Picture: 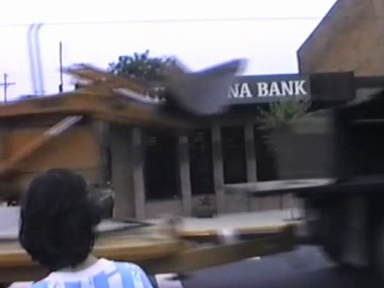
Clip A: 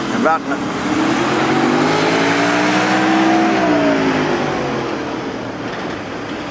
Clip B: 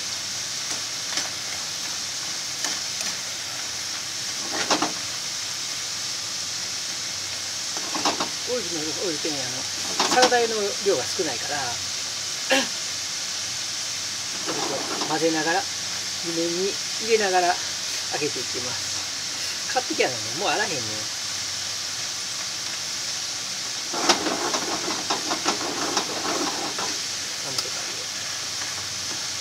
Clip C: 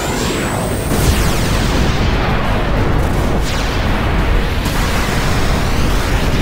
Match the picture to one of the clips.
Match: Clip A